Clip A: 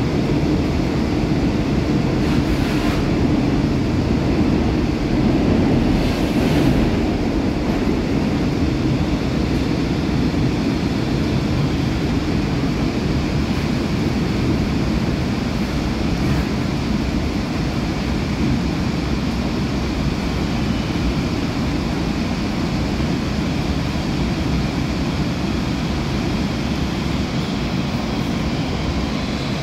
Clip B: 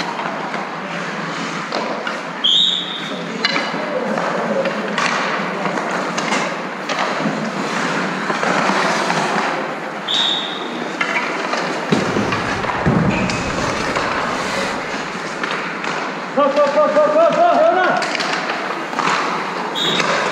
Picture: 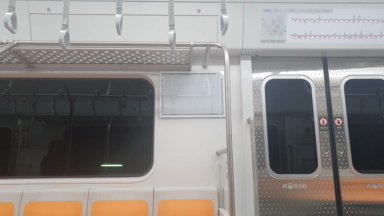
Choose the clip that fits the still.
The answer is A